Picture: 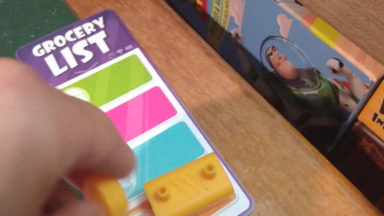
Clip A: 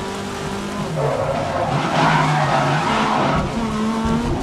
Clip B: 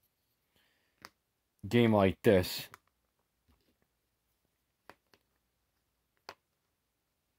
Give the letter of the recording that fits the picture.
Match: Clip B